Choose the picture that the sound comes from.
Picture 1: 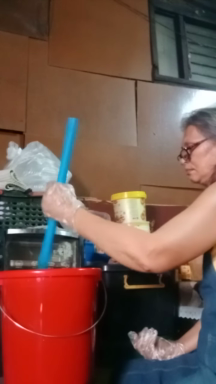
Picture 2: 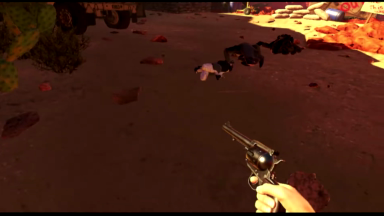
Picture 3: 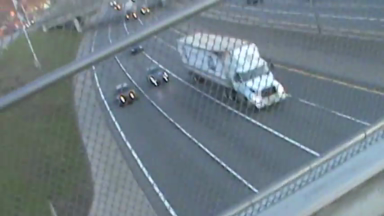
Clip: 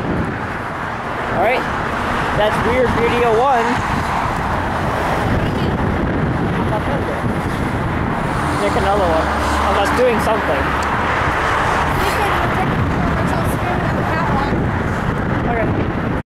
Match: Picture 3